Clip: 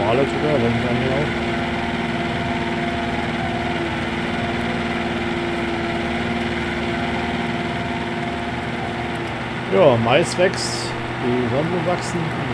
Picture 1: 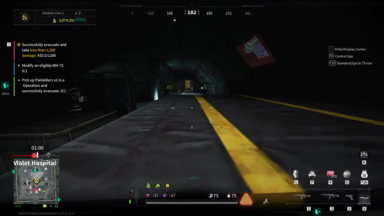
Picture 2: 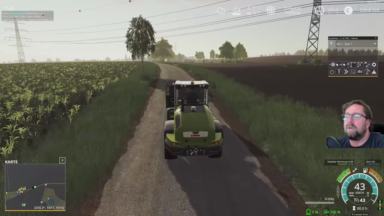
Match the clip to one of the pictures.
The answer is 2